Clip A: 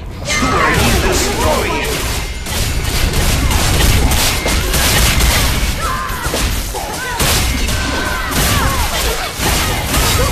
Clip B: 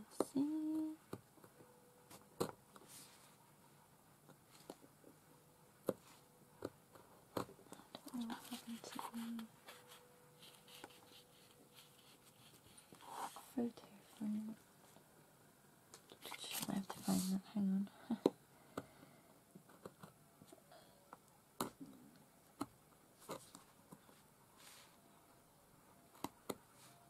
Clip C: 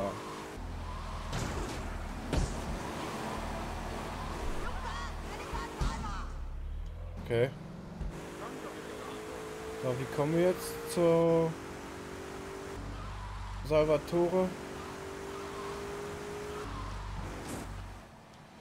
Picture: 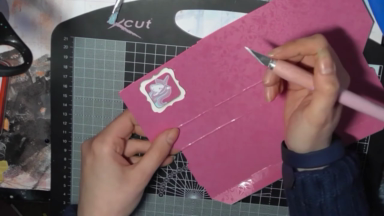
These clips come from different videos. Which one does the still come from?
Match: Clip B